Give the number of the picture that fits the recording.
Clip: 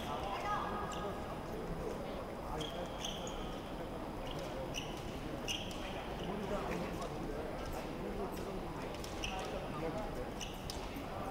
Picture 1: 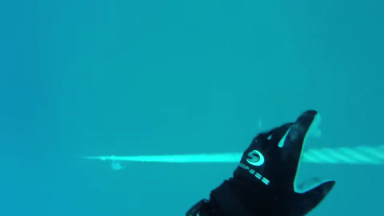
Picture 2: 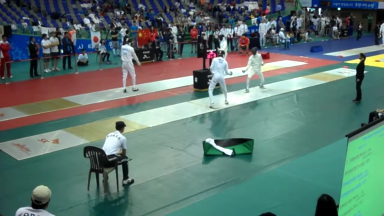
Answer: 2